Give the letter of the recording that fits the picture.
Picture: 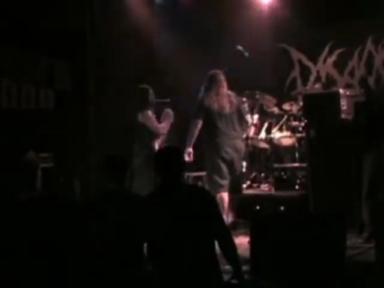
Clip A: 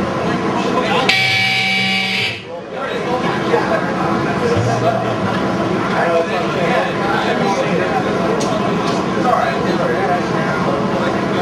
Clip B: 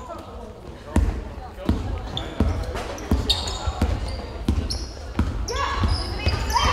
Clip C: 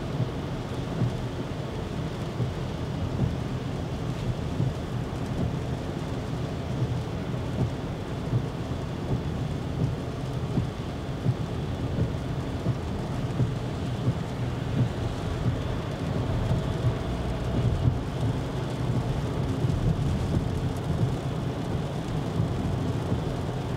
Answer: A